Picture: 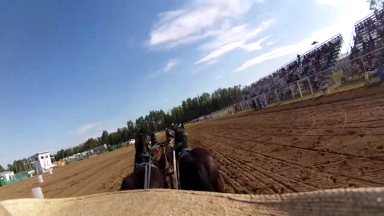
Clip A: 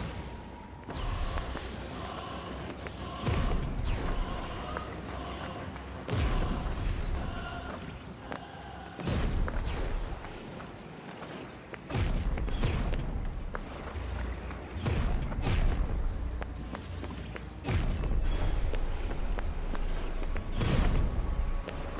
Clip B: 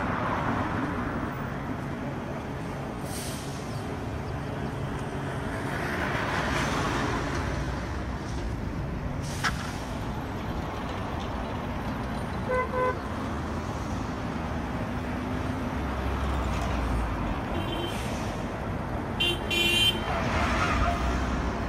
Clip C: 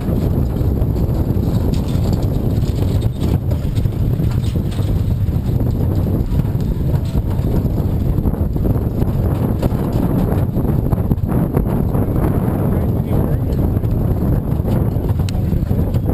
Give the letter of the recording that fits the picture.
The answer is C